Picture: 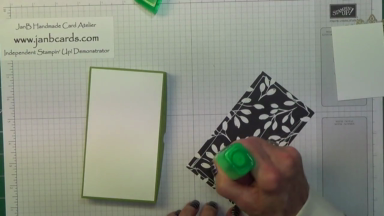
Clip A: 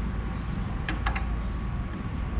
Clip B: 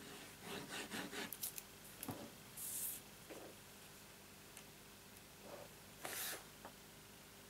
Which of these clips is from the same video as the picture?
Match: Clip B